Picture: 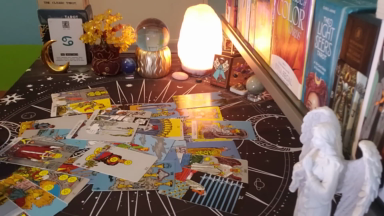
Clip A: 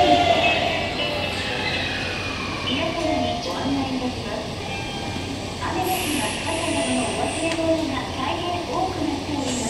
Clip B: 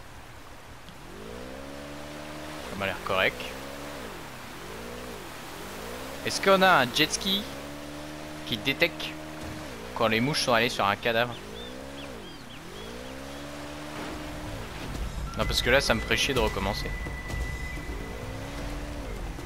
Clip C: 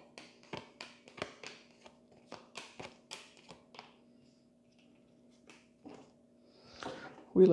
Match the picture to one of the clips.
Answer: C